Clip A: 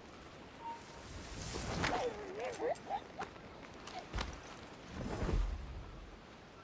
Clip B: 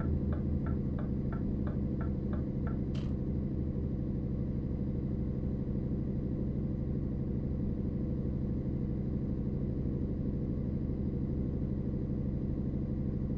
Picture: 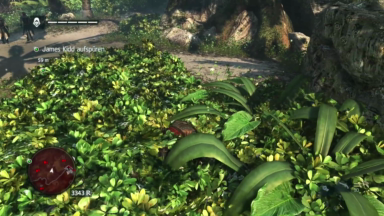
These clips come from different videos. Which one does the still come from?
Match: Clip A